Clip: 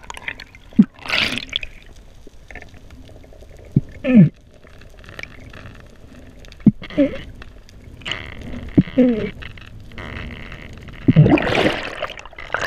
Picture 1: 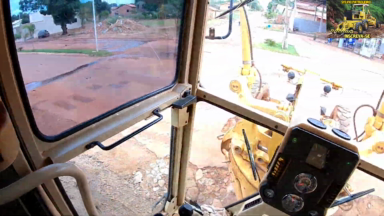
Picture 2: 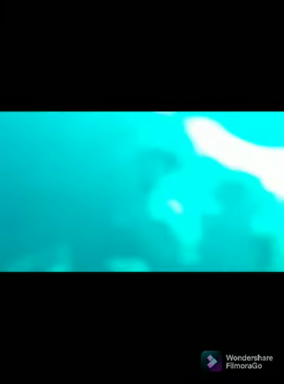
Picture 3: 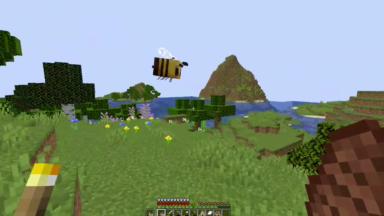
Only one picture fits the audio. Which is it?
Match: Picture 2